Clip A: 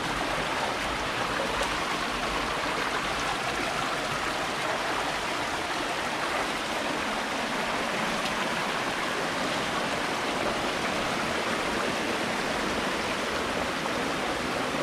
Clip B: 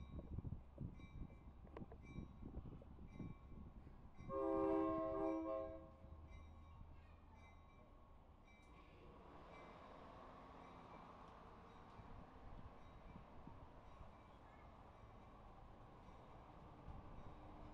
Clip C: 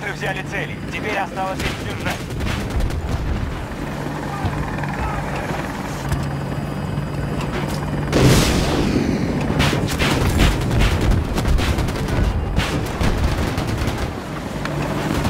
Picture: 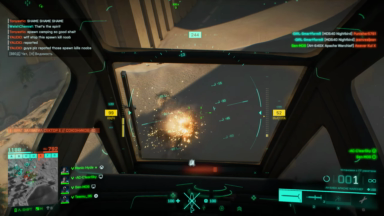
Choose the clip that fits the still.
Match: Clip C